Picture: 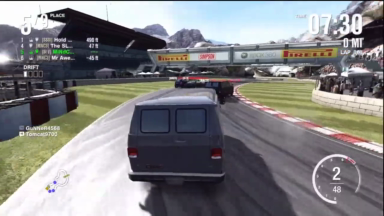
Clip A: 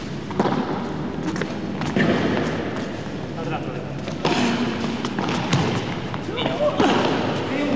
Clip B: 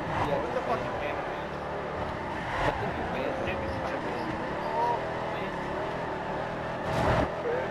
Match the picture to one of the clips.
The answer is B